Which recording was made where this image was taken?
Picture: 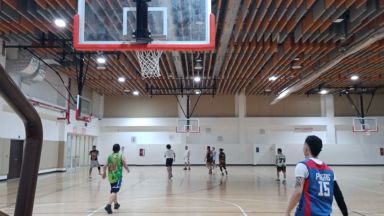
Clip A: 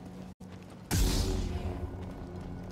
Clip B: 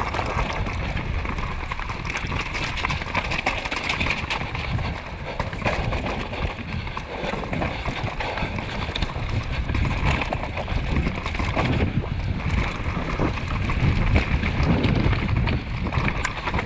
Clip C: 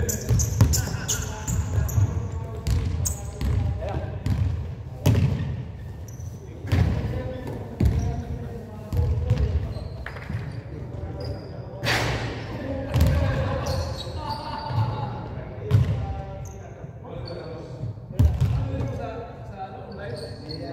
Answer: C